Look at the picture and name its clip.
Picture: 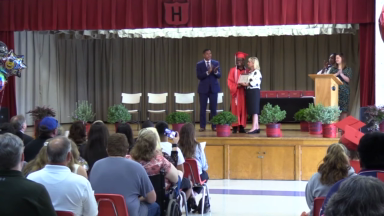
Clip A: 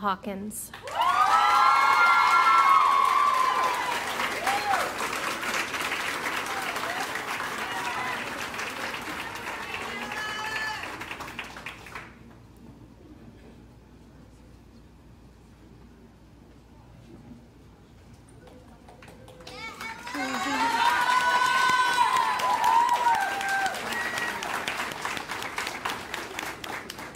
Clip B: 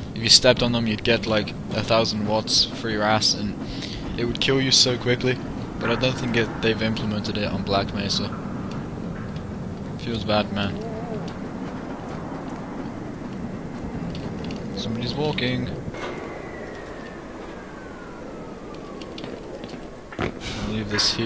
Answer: A